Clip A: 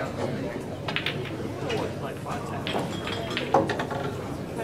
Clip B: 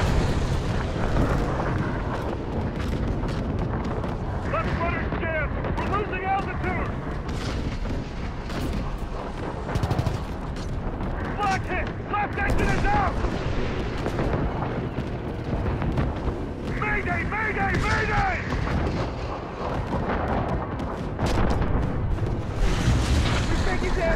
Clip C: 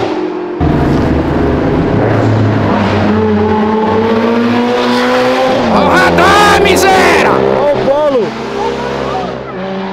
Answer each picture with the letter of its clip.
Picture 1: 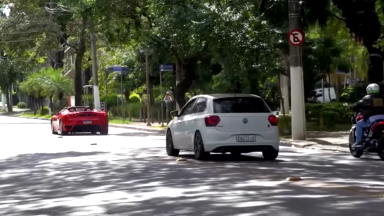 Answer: C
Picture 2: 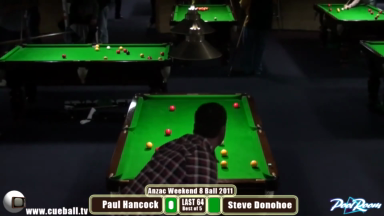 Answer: A